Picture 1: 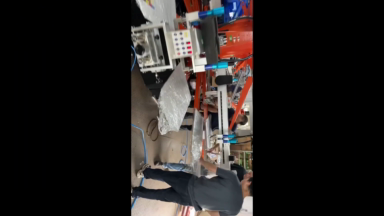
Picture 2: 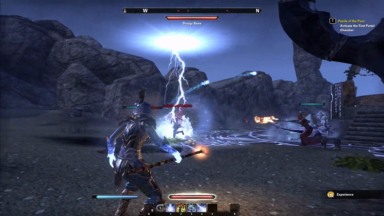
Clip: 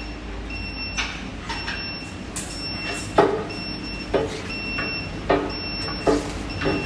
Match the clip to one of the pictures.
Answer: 1